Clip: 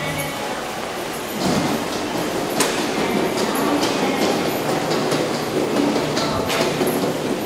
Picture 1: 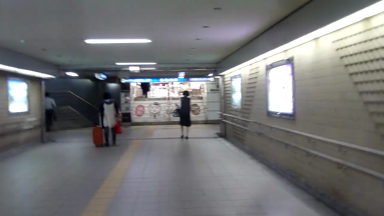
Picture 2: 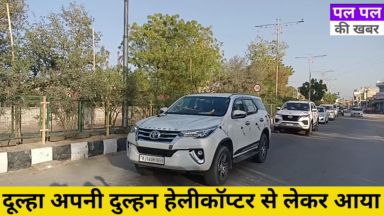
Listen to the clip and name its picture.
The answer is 1